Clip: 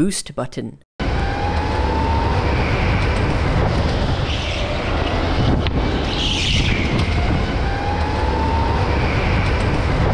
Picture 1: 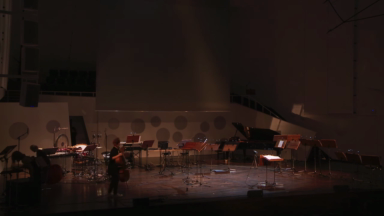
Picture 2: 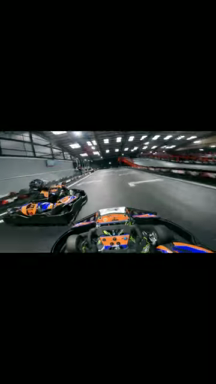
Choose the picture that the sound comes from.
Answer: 2